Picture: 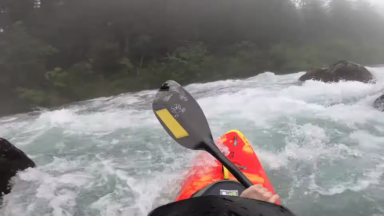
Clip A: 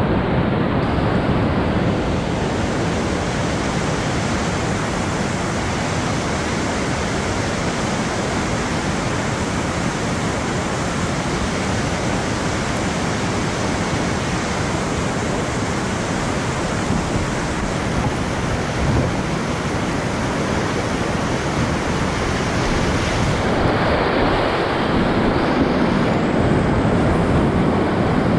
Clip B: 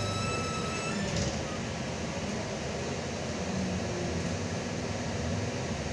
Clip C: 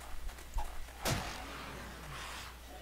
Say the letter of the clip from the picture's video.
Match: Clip A